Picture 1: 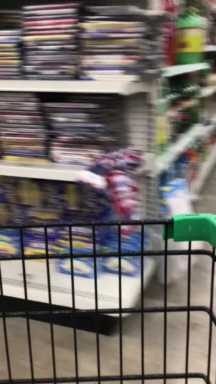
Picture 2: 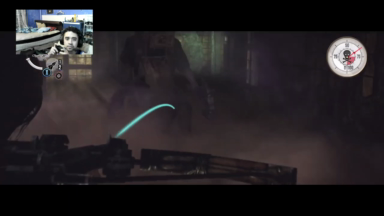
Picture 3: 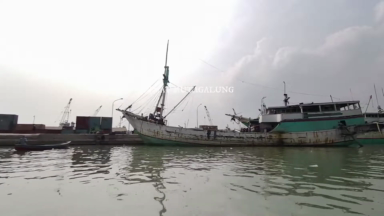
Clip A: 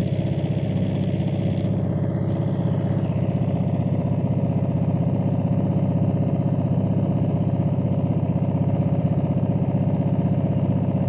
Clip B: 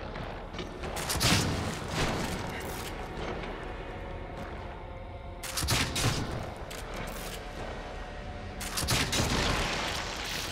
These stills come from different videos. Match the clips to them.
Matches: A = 3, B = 2